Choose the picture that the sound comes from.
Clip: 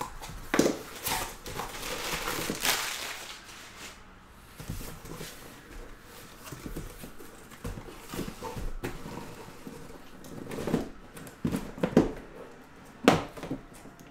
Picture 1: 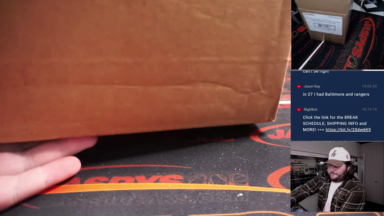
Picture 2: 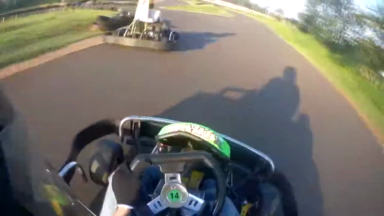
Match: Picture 1